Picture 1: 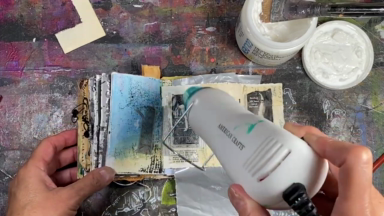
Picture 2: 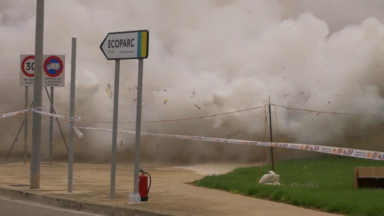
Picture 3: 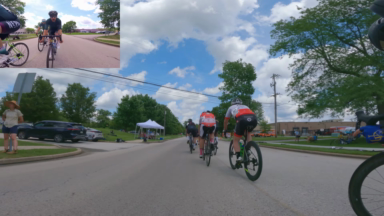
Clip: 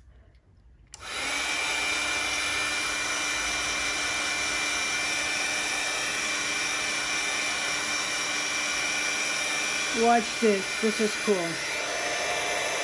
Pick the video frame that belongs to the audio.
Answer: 1